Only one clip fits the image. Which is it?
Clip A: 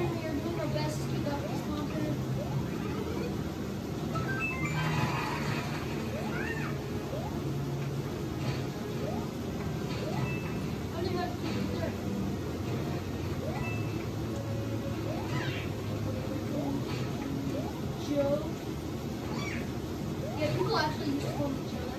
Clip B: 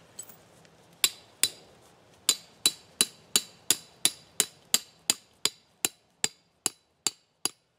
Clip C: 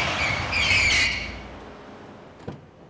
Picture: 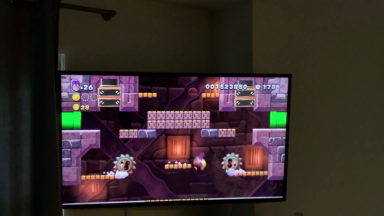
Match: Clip A